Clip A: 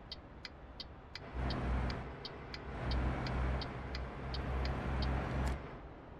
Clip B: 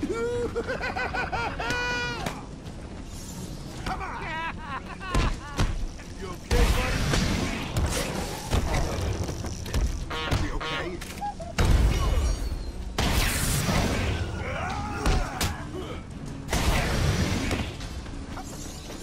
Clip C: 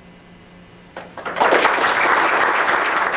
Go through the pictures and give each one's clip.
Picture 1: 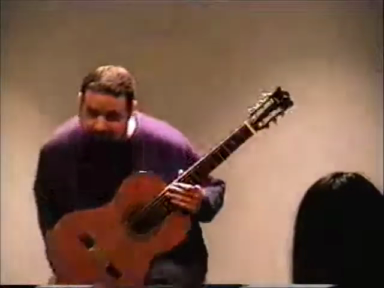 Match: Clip C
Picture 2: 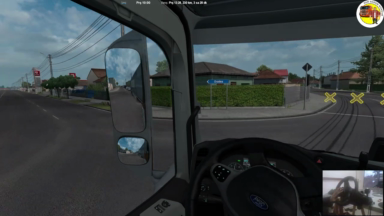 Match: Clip A